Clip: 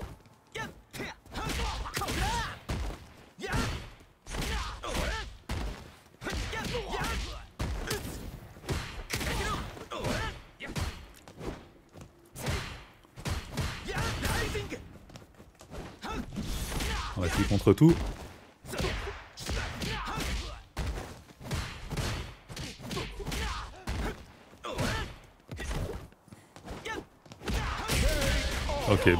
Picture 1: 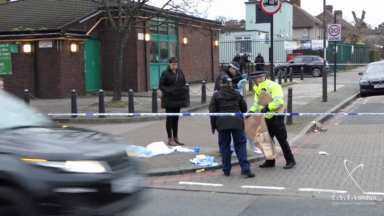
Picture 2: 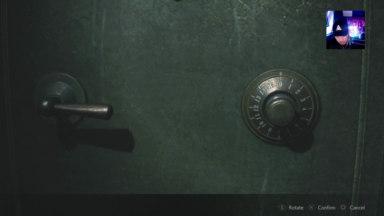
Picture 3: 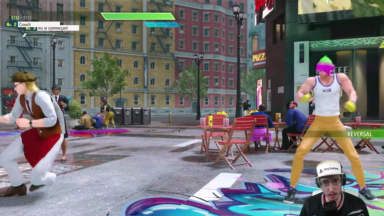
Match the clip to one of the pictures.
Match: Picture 3